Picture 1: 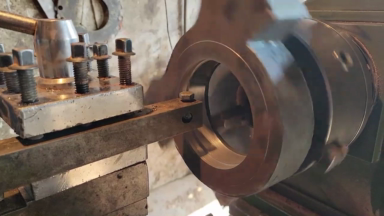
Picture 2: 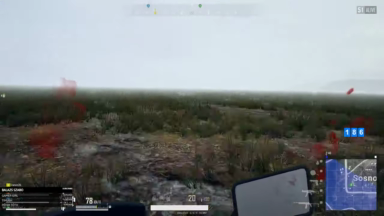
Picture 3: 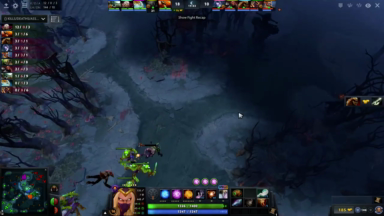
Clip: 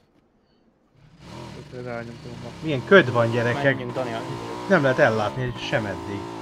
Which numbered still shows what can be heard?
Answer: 2